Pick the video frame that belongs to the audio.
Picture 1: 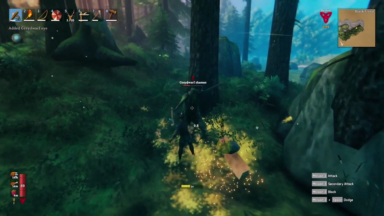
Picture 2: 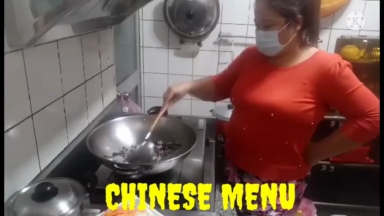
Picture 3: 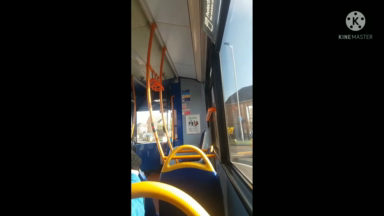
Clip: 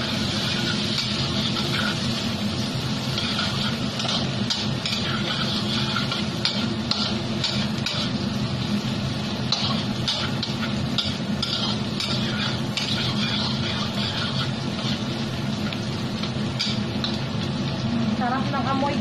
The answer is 2